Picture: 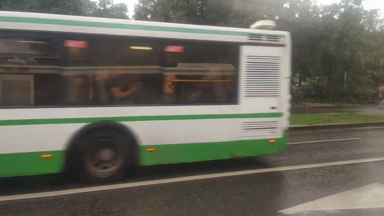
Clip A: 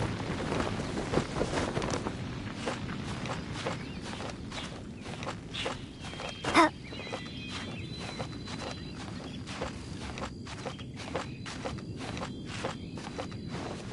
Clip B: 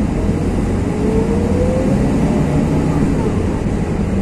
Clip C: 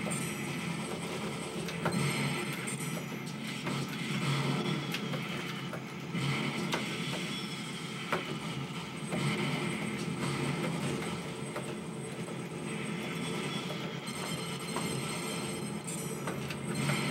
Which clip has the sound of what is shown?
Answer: B